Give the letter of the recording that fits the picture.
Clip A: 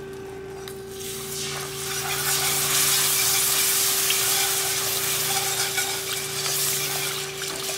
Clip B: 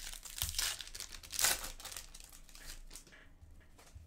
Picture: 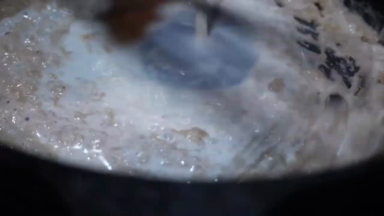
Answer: A